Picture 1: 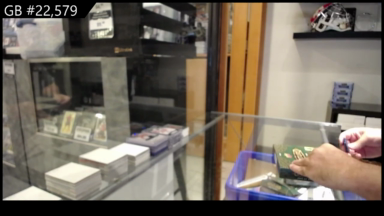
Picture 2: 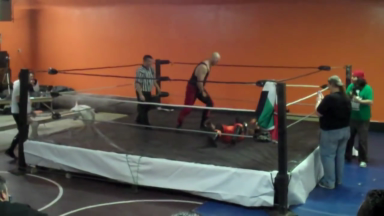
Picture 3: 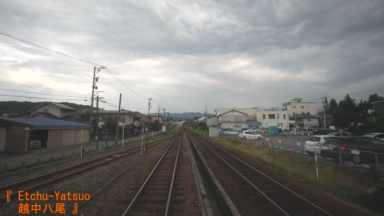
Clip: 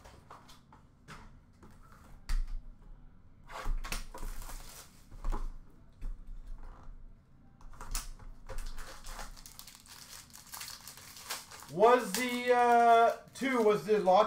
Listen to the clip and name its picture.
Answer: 1